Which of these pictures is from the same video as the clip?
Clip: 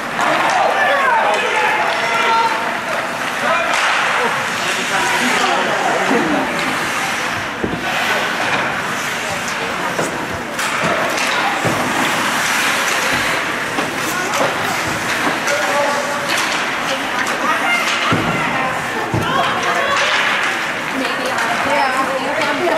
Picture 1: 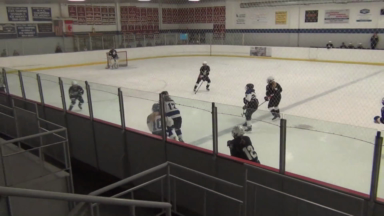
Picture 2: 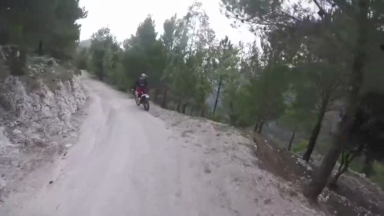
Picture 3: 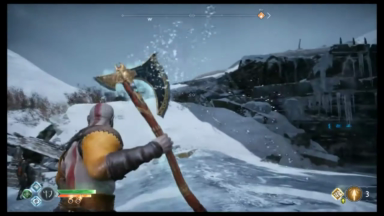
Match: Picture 1